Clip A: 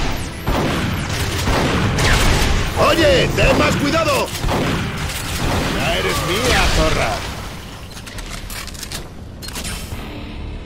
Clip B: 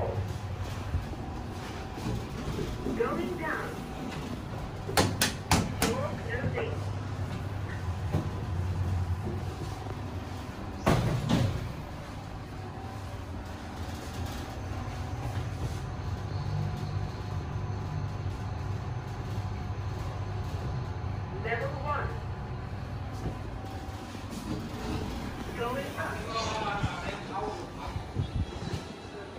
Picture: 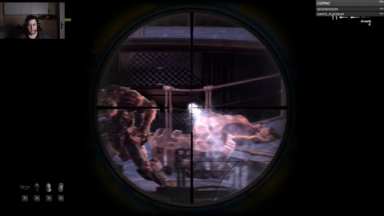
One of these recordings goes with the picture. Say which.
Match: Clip A